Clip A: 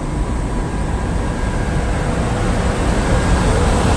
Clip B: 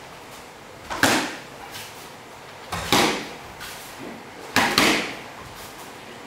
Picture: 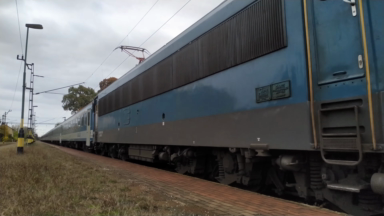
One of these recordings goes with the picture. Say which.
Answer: A